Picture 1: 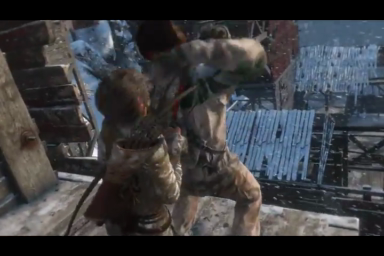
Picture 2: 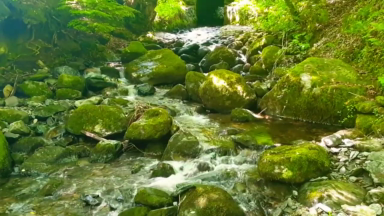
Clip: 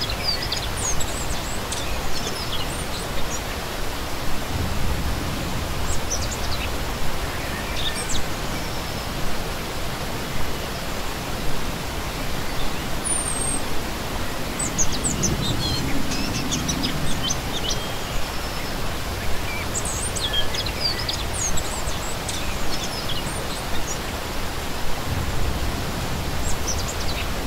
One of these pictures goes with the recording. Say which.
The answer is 2